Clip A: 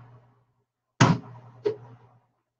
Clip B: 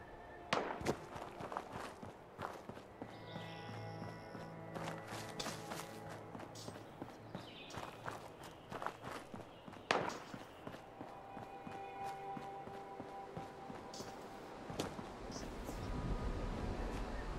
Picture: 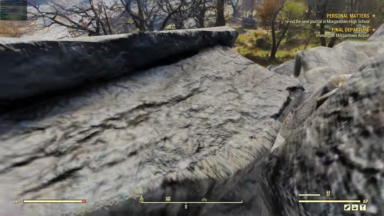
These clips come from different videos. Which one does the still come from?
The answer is B